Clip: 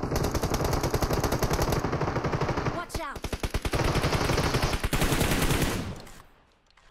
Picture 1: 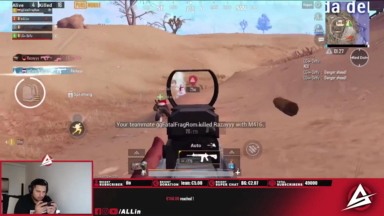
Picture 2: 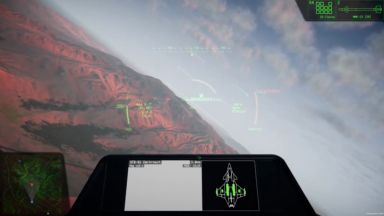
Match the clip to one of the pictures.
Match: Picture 1